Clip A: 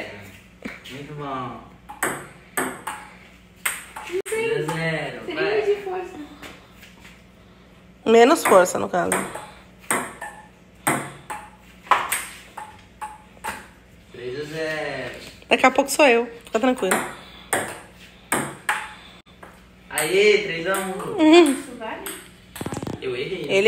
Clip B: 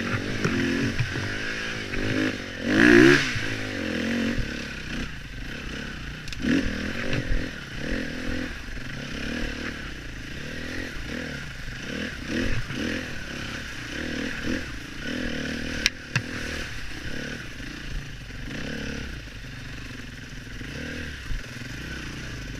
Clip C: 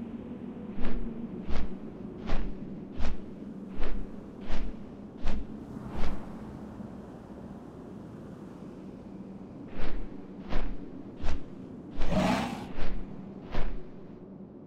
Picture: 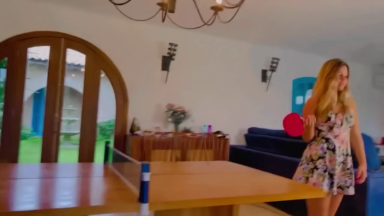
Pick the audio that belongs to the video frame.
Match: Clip A